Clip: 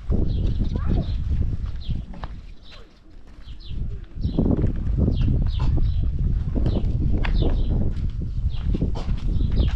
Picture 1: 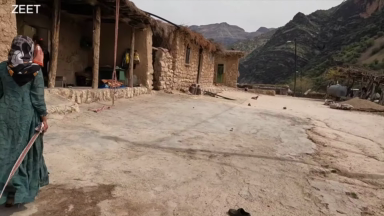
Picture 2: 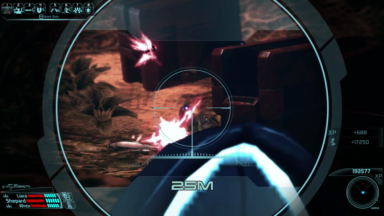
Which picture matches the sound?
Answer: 1